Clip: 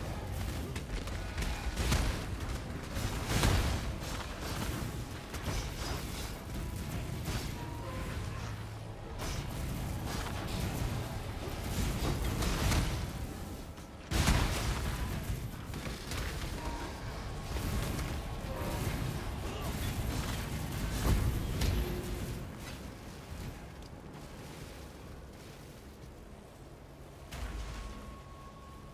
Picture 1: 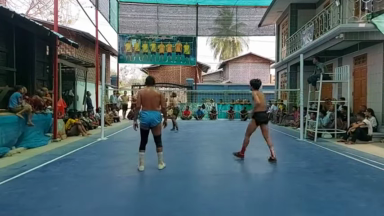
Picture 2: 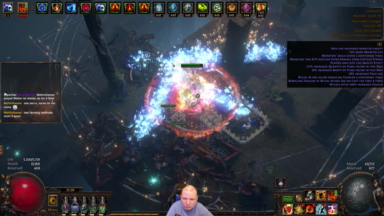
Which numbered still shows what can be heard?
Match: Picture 2